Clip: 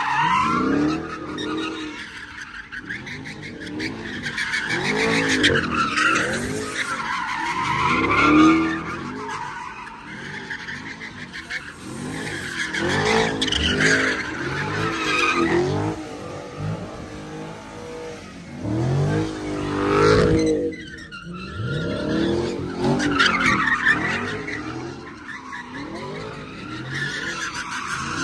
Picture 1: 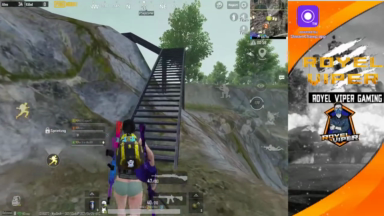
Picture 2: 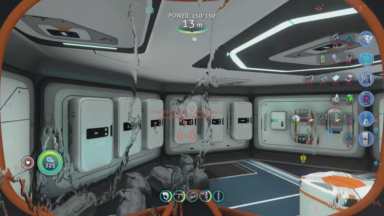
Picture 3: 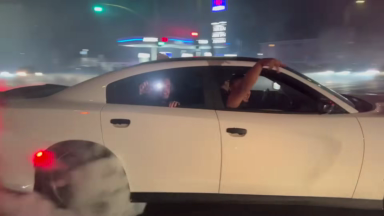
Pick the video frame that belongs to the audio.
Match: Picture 3